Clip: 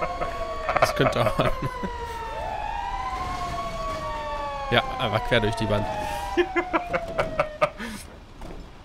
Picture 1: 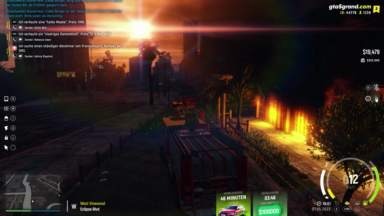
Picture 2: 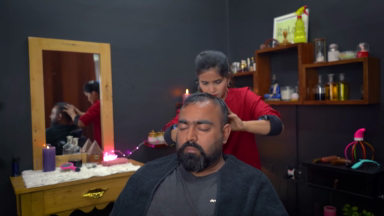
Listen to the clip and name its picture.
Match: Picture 1